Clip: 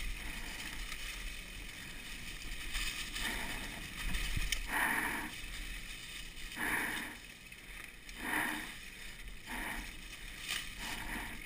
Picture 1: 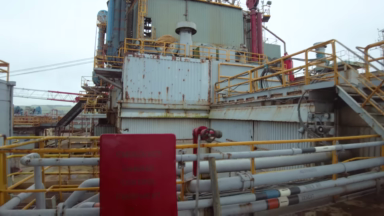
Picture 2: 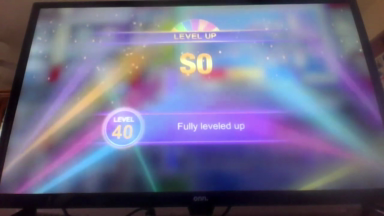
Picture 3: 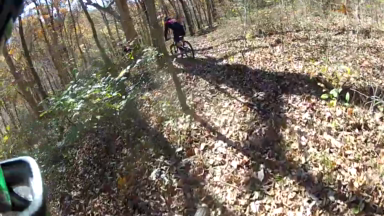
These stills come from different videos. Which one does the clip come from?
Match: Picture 3